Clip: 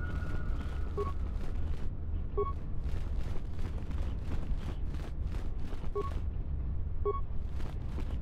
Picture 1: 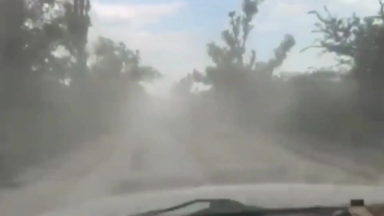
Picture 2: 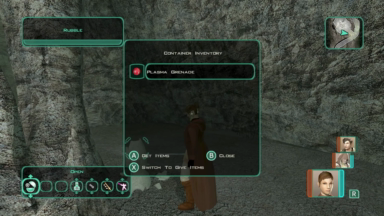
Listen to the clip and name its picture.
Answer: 2